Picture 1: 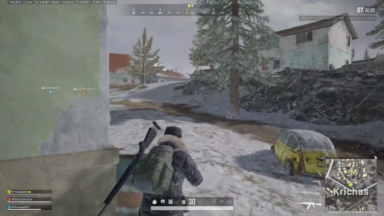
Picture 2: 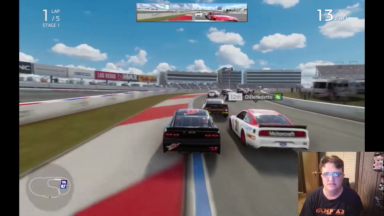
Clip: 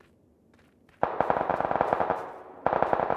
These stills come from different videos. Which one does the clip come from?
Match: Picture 1